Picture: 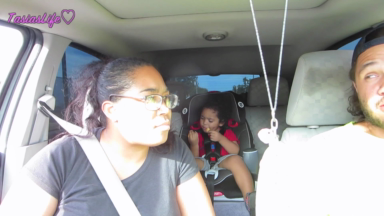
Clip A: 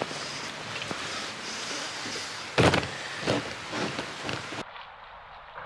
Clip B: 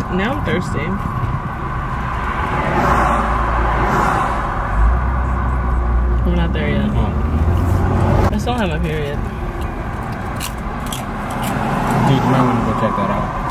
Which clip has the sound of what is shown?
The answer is B